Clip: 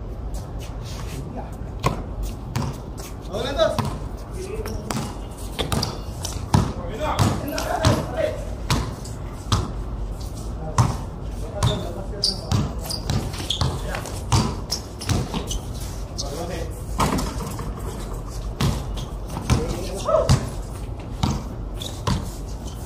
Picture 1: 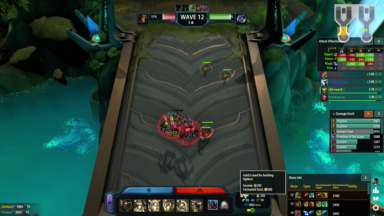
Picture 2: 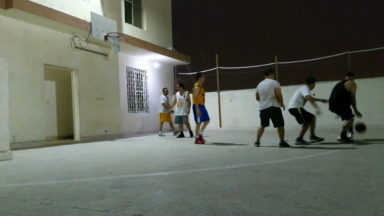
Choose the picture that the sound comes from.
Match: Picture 2